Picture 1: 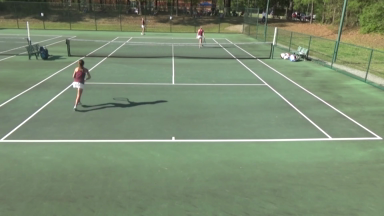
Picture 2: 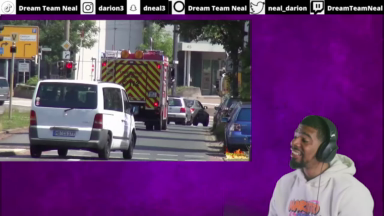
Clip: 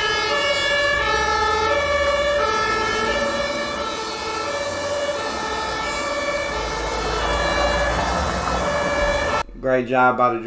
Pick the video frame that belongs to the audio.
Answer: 2